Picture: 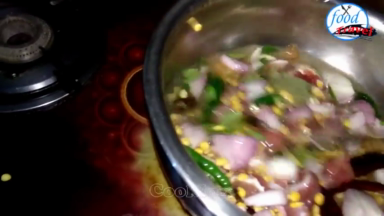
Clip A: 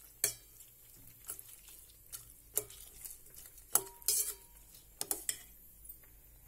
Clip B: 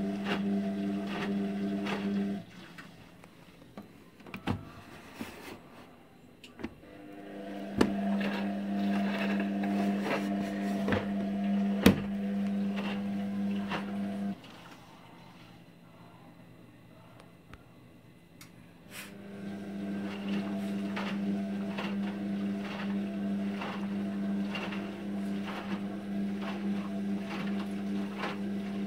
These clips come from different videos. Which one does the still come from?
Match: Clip A